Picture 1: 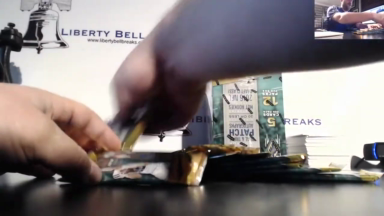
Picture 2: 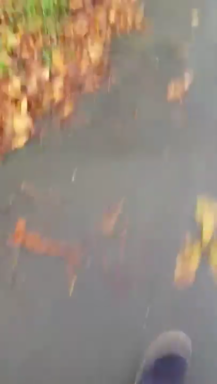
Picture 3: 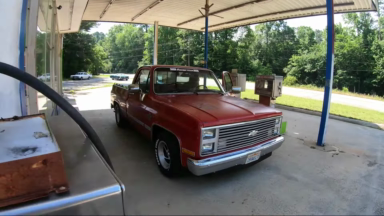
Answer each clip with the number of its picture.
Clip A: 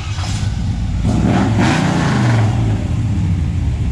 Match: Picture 3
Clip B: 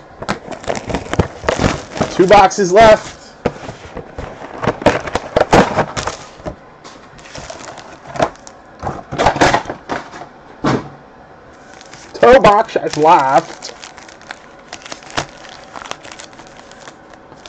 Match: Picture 1